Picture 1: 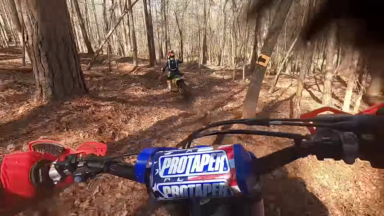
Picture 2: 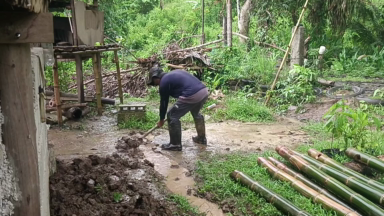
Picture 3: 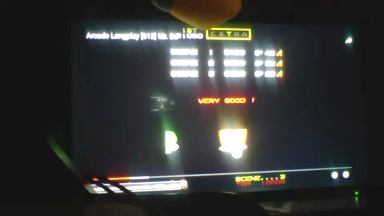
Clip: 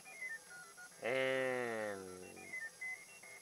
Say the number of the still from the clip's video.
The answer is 3